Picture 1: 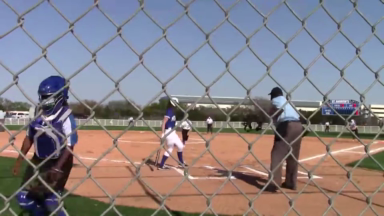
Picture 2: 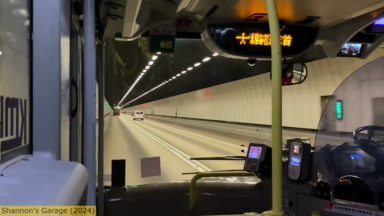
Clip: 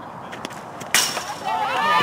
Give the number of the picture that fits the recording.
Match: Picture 1